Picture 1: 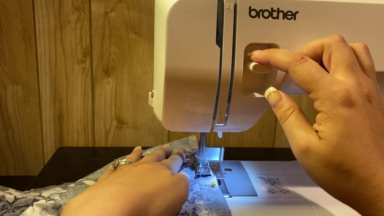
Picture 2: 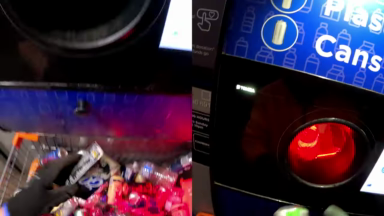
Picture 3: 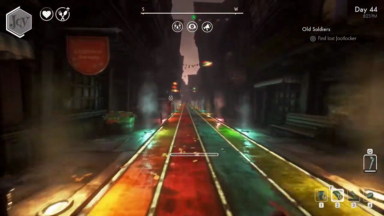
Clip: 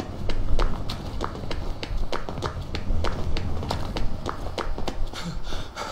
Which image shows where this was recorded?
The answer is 3